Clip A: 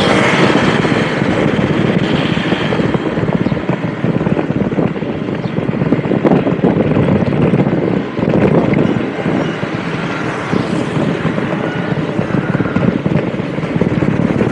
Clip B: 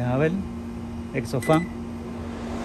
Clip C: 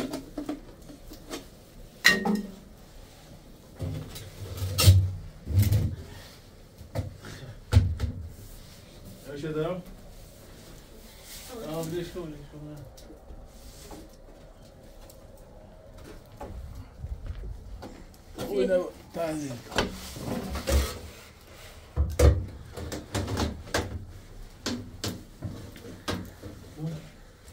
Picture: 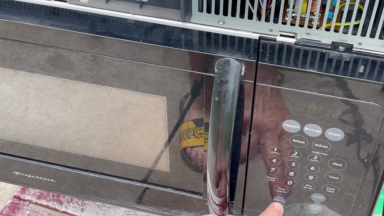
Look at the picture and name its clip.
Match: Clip B